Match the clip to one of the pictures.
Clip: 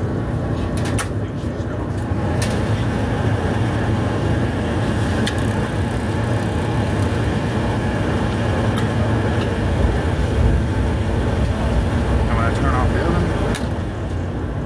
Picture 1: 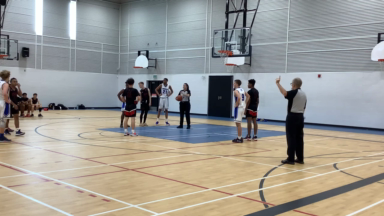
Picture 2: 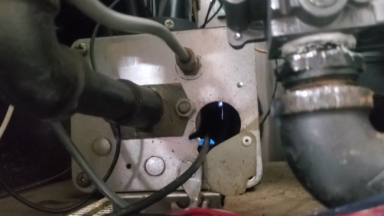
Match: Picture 2